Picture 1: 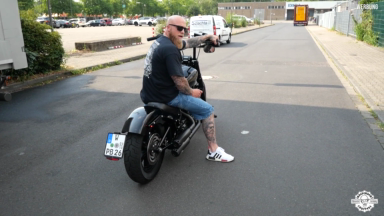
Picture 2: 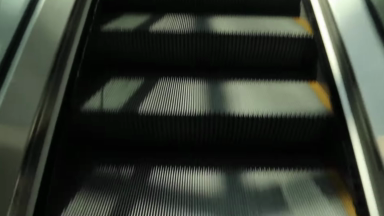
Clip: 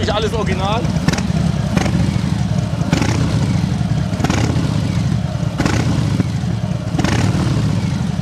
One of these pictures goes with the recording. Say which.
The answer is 1